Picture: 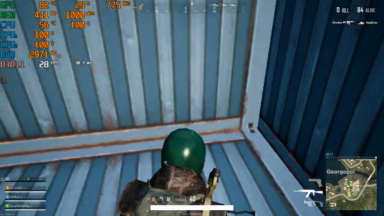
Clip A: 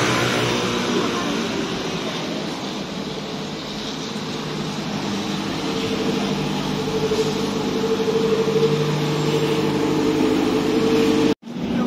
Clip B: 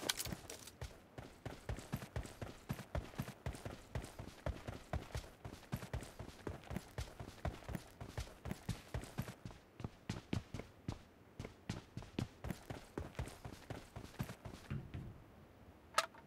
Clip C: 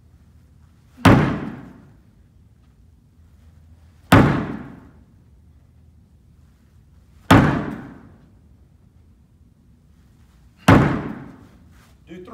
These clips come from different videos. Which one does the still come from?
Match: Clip B